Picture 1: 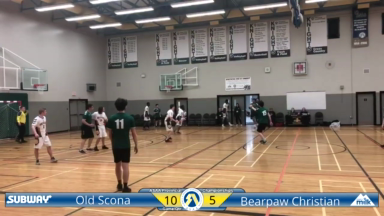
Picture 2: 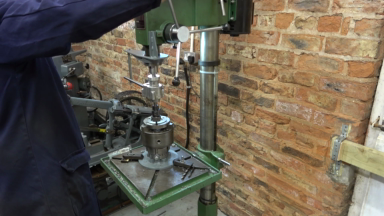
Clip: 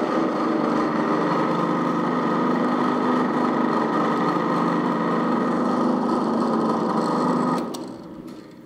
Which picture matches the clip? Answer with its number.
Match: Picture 2